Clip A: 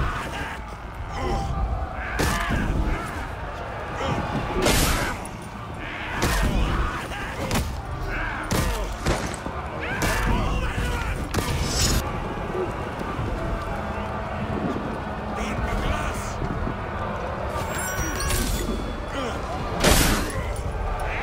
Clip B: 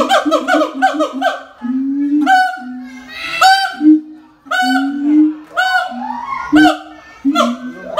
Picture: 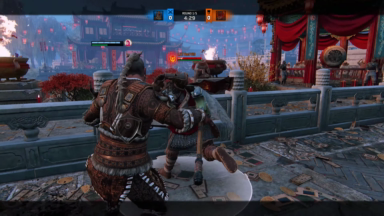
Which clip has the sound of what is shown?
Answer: A